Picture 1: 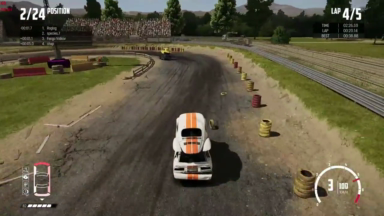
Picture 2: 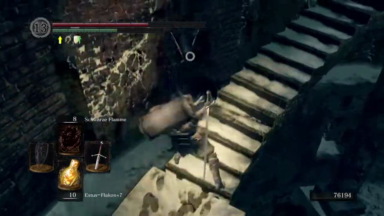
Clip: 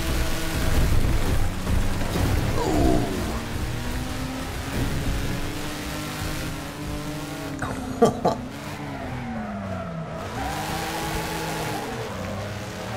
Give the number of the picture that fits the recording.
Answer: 1